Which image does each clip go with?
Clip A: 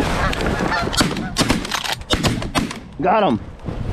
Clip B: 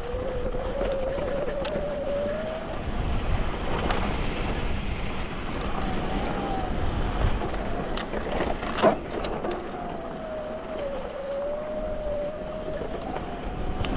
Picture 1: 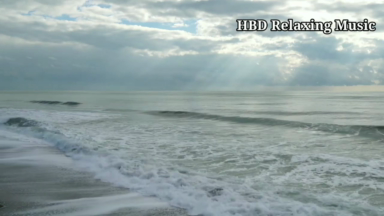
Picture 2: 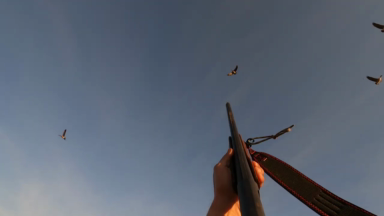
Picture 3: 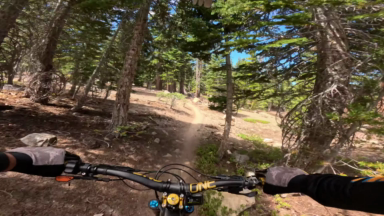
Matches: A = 2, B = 3